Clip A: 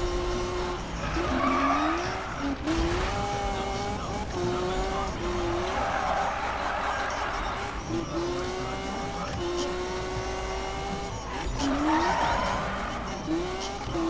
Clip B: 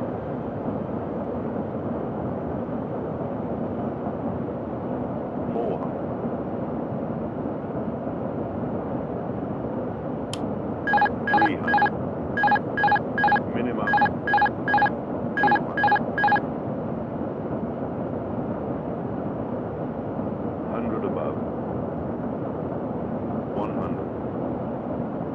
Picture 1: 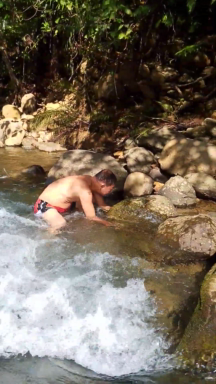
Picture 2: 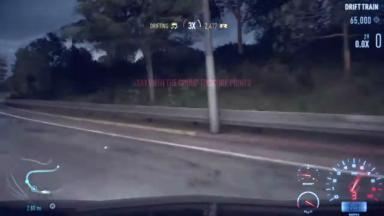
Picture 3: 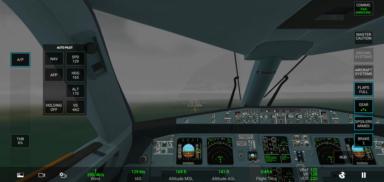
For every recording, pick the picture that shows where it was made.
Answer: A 2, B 3